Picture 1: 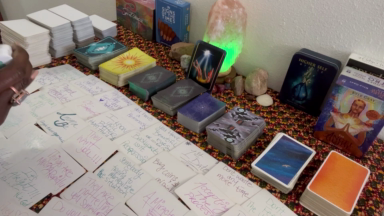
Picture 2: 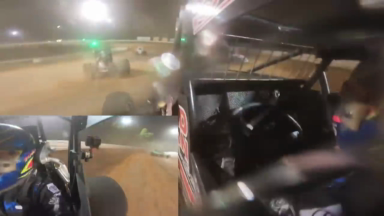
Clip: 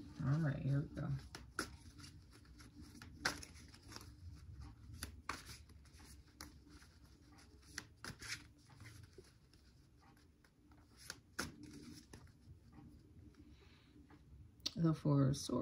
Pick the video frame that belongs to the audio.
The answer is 1